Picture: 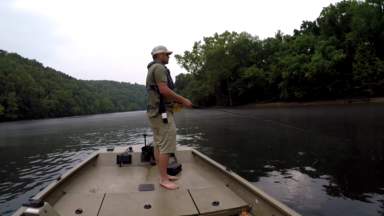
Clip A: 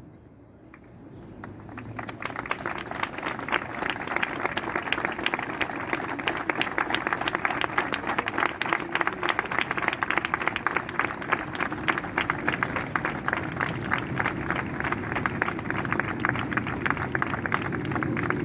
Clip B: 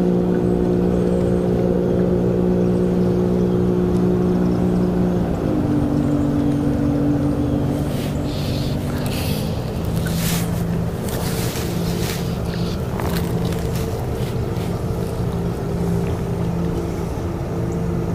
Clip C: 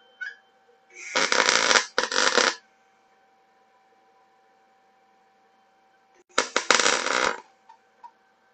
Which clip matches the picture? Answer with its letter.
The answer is B